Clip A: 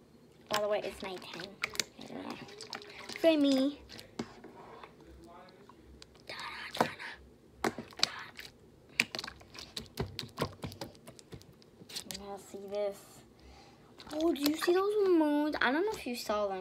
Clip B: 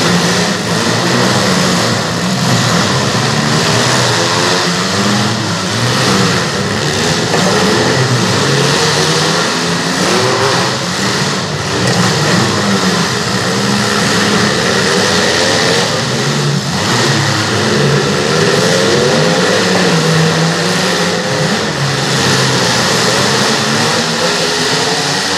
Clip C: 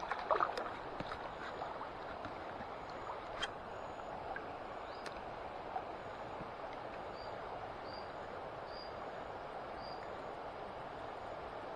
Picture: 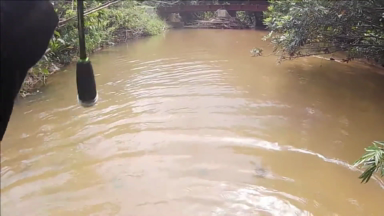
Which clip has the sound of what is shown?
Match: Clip C